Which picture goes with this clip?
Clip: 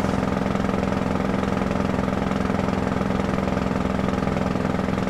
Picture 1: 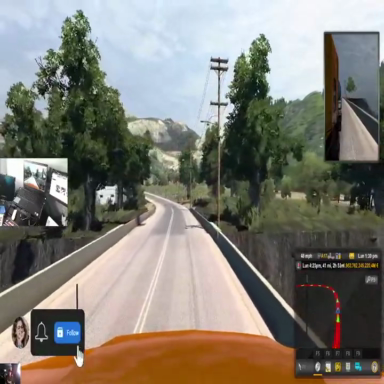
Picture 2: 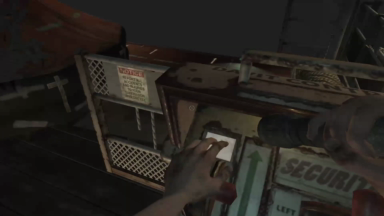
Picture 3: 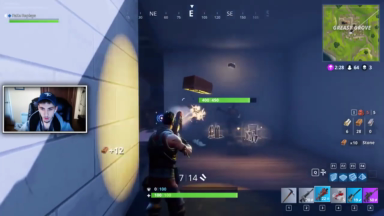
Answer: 1